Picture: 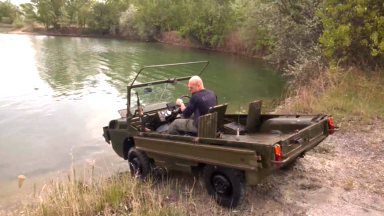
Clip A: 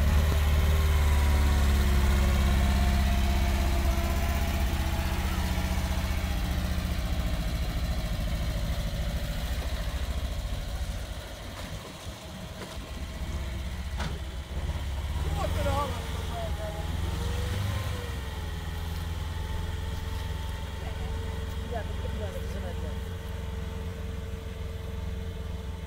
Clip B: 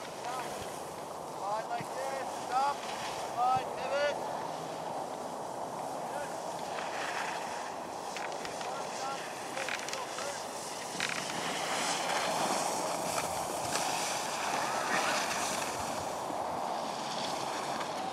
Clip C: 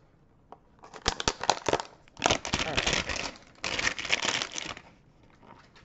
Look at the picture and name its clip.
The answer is A